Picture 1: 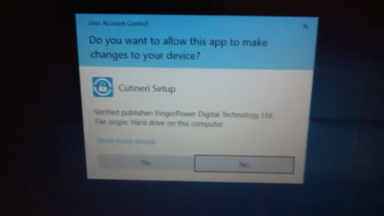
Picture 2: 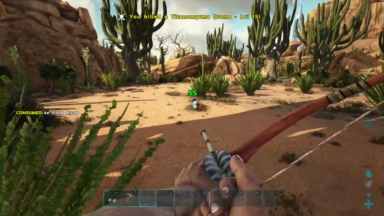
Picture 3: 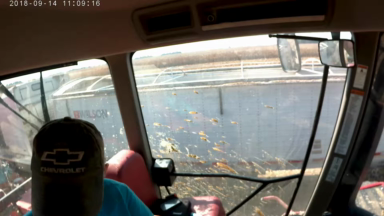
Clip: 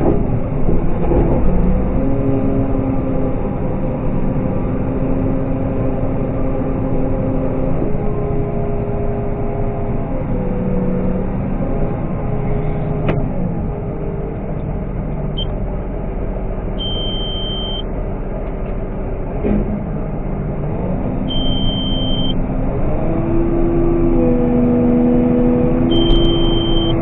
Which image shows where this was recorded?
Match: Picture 3